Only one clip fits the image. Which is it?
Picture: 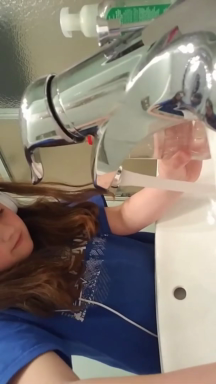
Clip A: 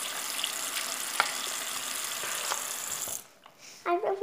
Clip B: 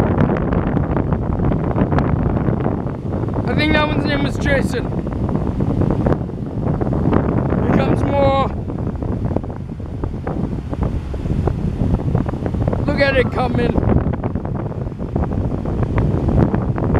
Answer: A